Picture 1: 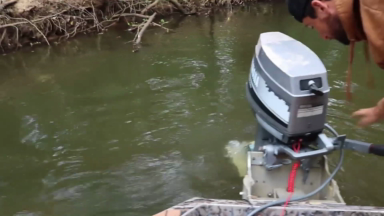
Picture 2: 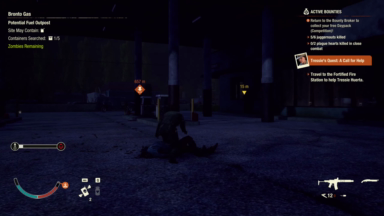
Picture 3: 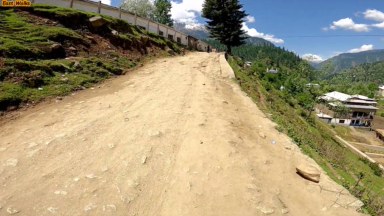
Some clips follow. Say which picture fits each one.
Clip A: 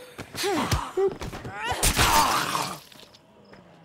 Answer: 2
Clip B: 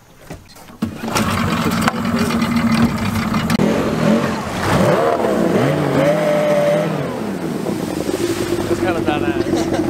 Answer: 1